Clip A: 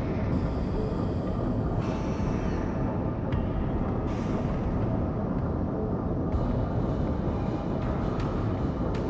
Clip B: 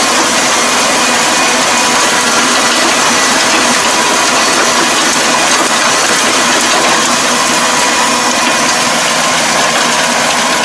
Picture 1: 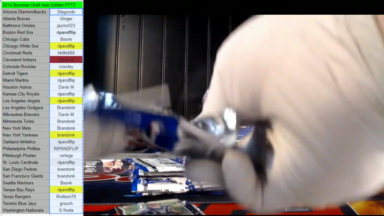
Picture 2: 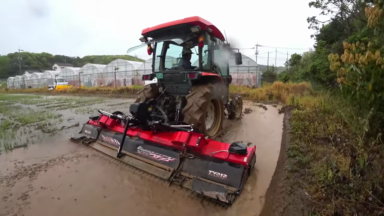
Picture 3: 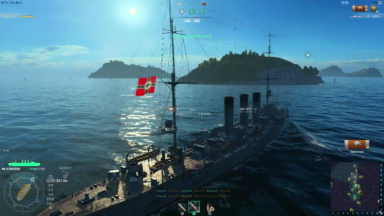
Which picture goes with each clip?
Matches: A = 3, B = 2